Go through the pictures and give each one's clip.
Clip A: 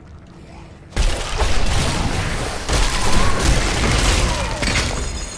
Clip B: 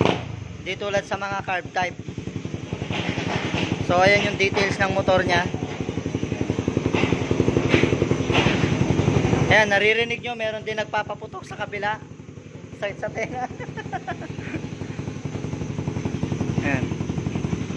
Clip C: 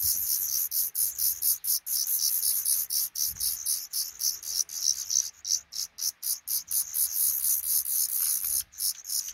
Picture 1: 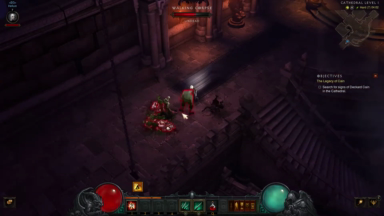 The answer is A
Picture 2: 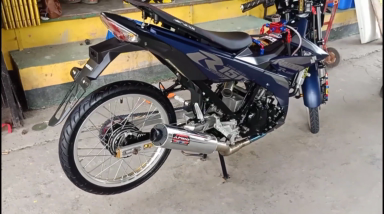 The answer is B